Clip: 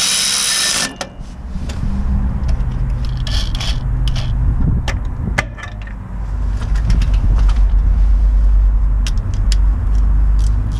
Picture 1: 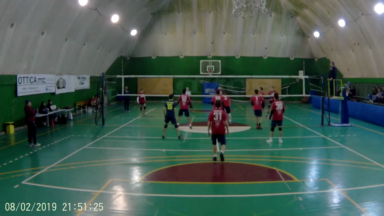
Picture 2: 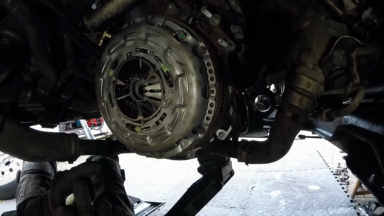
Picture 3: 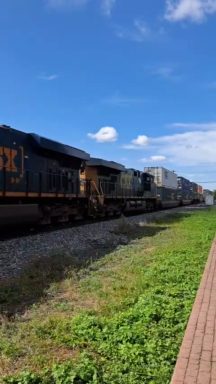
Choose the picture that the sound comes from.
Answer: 2